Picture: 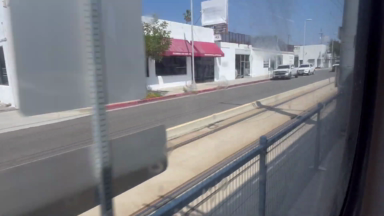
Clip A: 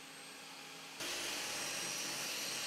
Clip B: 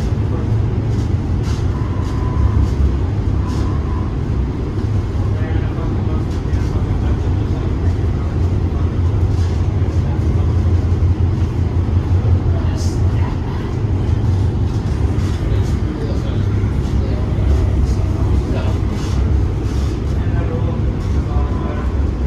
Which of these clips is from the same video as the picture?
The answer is B